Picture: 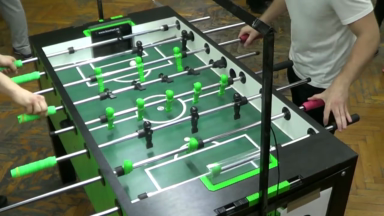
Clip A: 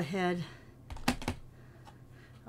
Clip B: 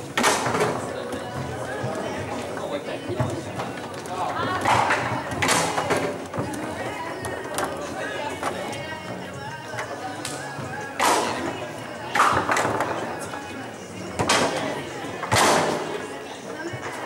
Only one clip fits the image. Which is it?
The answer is B